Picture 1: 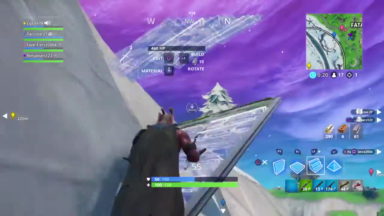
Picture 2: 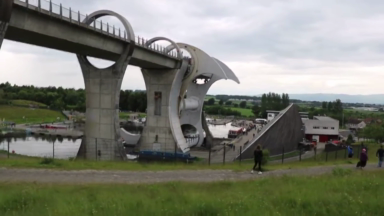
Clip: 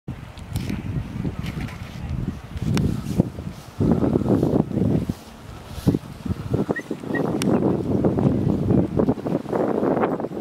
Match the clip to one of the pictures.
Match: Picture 2